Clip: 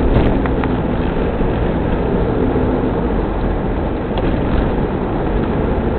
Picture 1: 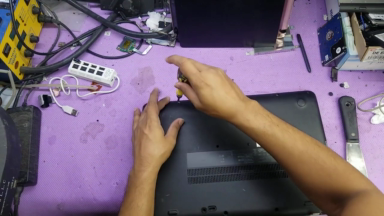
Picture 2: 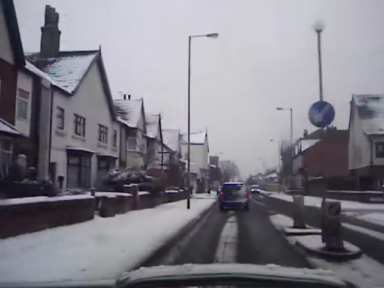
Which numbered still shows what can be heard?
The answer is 2